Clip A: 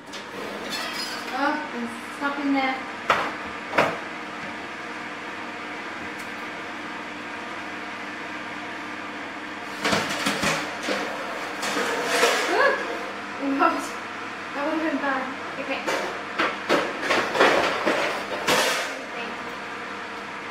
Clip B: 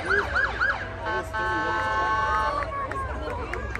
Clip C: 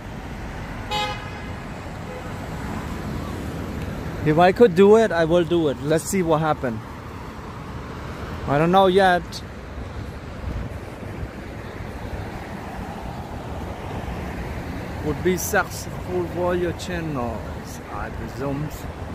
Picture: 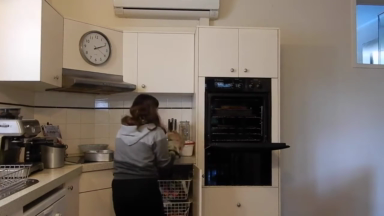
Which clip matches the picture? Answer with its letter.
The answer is A